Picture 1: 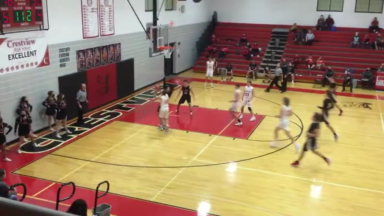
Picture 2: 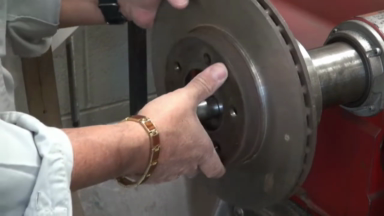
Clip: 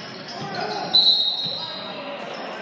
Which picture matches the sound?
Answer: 1